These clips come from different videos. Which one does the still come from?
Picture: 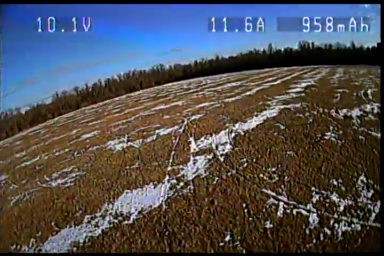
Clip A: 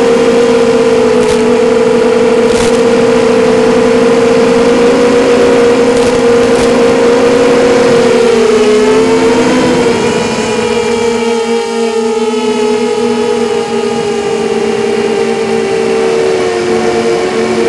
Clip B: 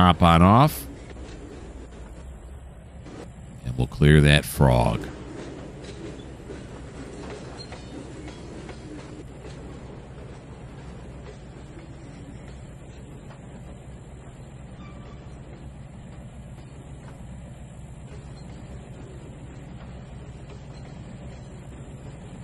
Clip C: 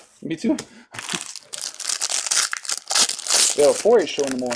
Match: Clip A